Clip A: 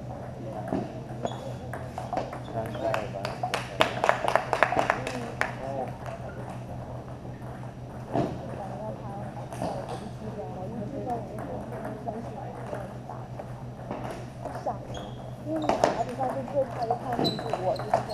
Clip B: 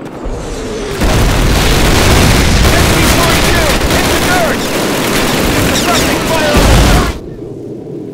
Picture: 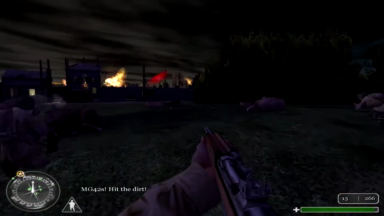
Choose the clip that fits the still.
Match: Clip B